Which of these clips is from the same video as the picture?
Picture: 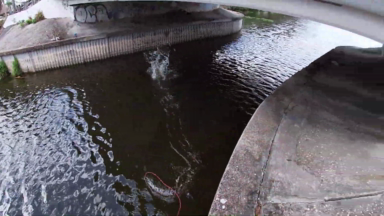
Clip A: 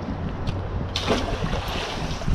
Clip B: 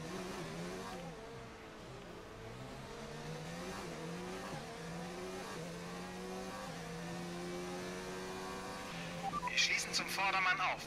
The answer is A